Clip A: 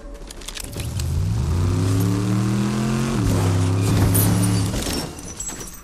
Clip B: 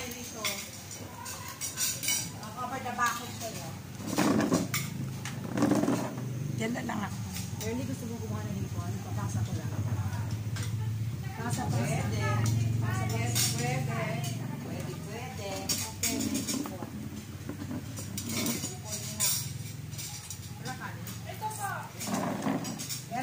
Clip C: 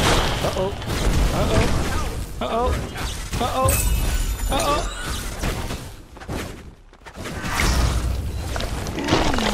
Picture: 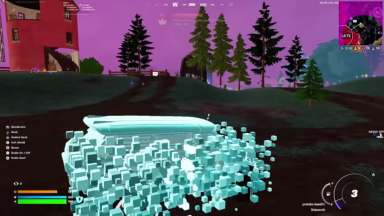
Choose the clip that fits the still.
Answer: A